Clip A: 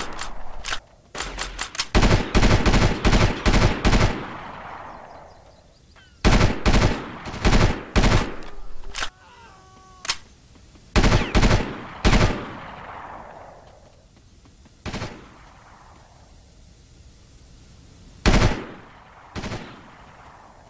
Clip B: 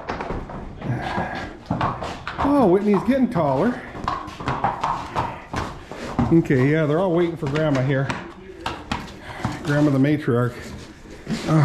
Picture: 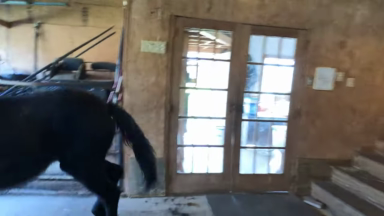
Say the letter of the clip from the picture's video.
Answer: B